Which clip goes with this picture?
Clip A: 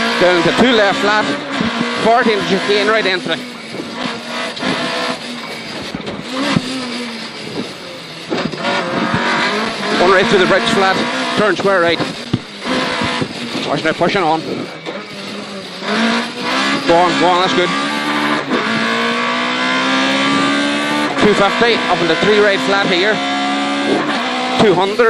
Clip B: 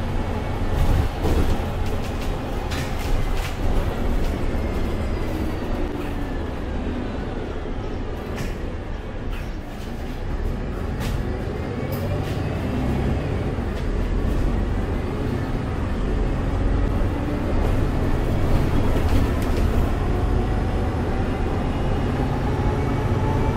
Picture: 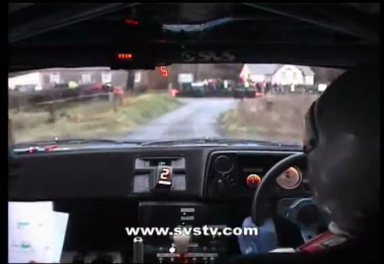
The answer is A